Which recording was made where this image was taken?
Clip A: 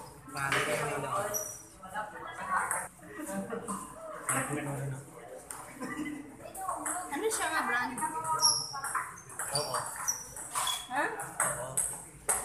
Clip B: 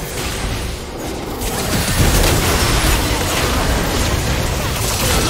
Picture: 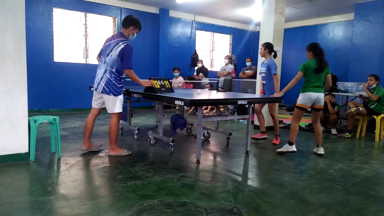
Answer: A